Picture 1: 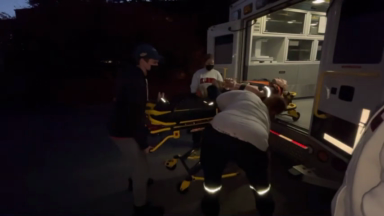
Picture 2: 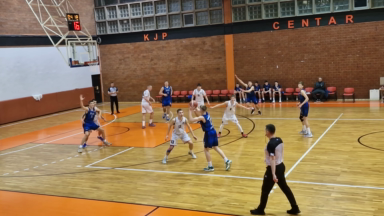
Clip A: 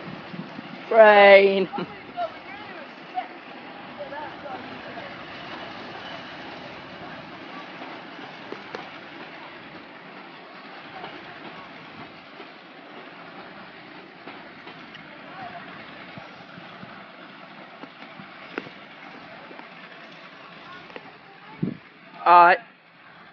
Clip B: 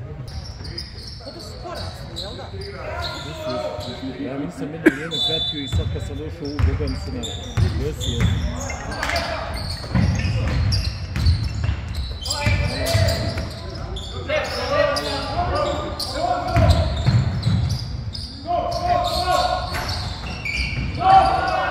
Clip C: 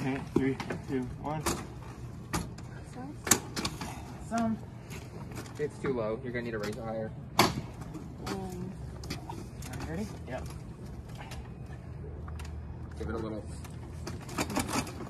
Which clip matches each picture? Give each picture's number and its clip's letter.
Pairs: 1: C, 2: B